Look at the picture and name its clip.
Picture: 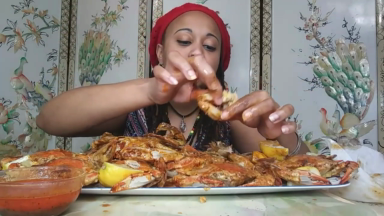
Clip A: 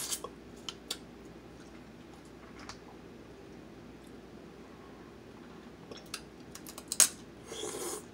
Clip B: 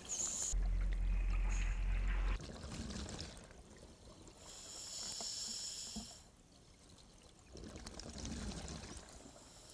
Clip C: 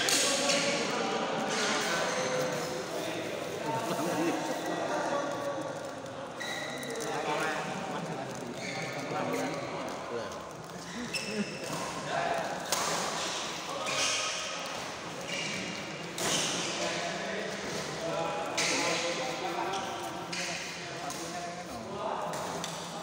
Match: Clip A